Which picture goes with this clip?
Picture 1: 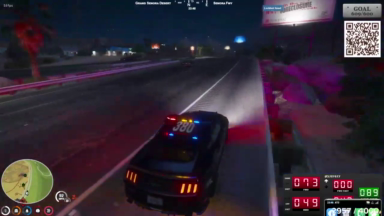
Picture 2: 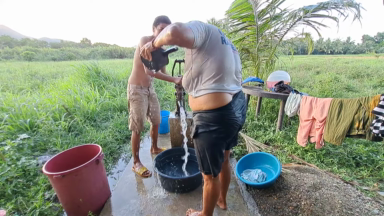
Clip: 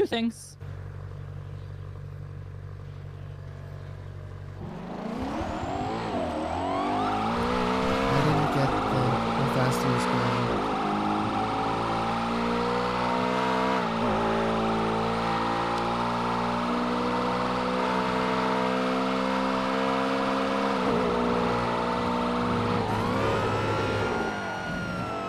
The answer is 1